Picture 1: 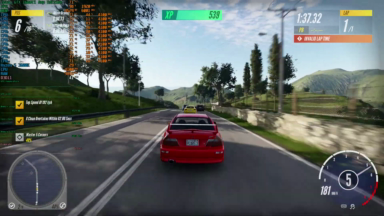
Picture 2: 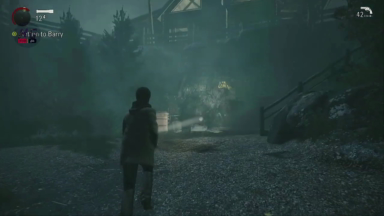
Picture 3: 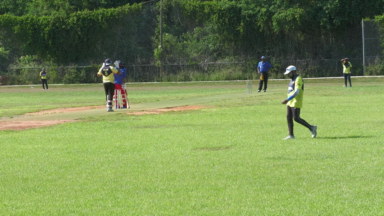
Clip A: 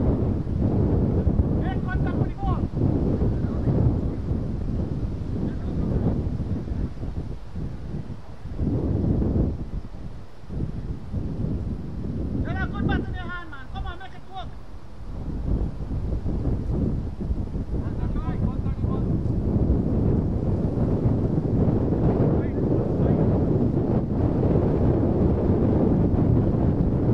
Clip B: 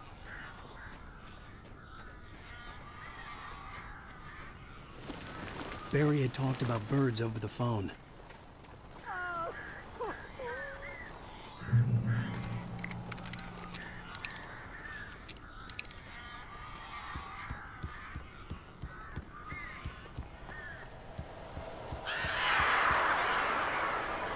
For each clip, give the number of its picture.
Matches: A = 3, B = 2